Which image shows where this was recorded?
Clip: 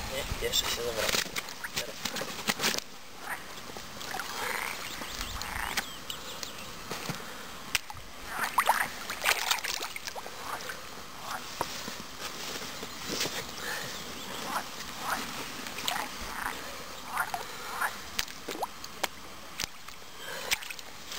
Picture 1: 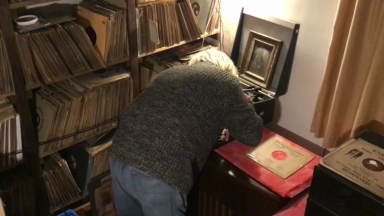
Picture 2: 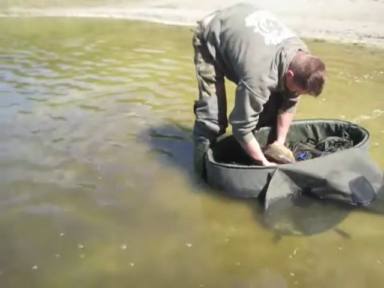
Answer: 2